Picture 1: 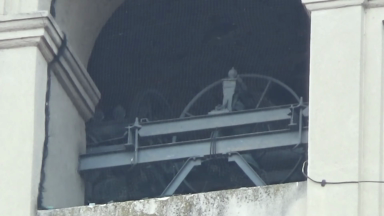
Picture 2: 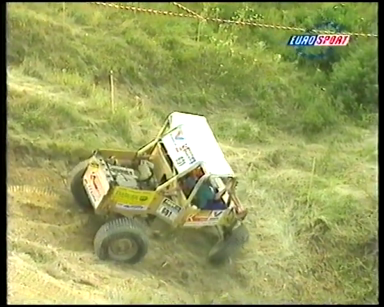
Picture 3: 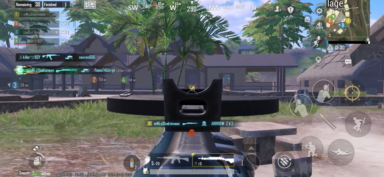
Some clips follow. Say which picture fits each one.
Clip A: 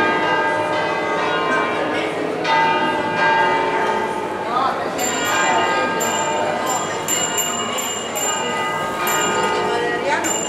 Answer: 1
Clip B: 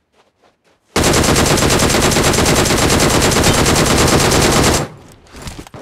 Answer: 3